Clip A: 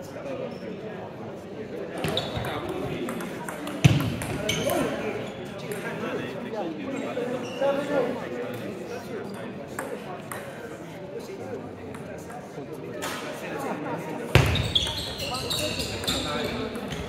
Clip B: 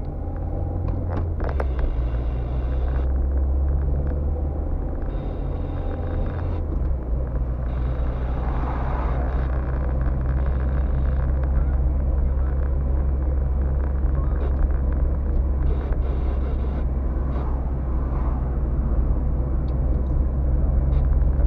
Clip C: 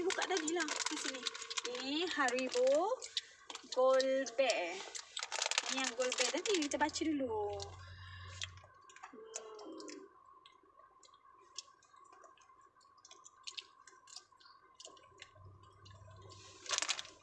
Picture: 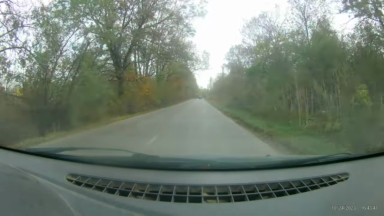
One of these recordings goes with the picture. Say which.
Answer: B